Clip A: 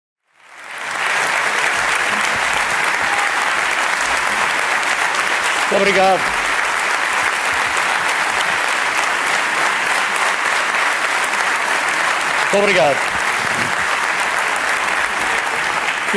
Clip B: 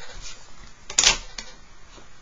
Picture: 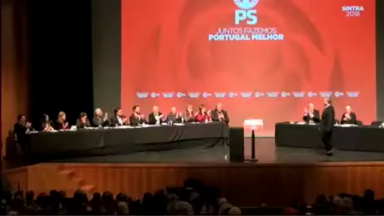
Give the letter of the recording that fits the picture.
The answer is A